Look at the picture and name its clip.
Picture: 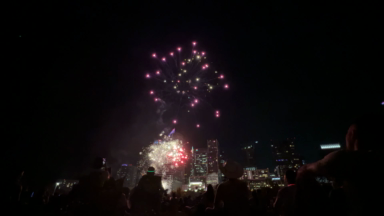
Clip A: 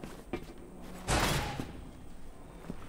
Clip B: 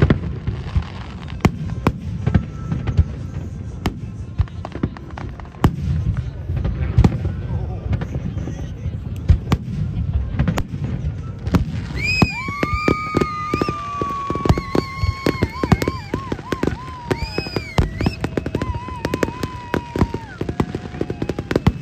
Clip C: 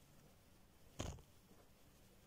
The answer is B